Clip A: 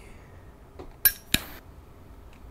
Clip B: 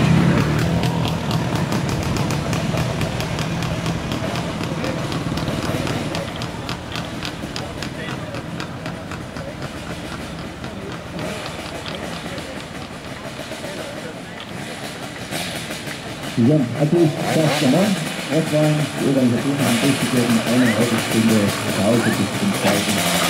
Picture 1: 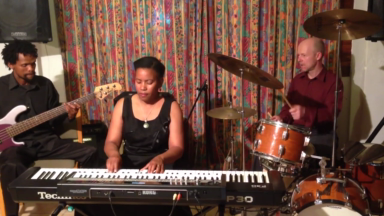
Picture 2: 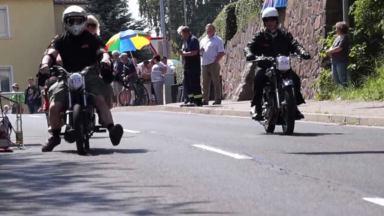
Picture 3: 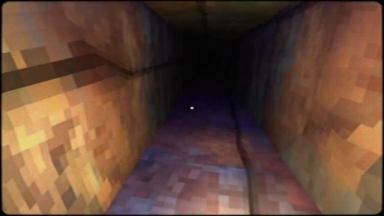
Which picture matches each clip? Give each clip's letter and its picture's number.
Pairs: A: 3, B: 2